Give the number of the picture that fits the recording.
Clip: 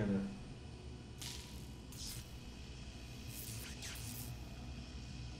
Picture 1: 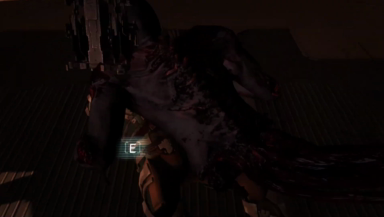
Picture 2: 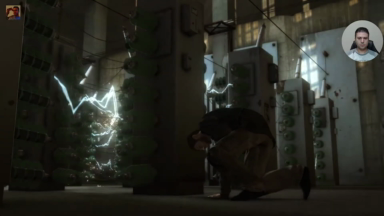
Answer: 2